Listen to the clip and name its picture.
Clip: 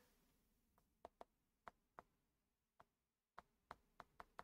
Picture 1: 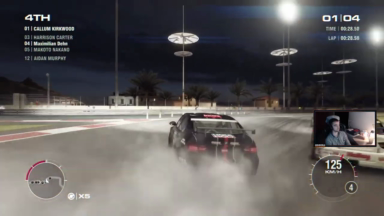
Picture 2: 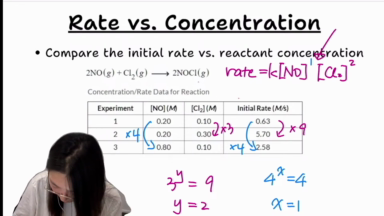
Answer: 2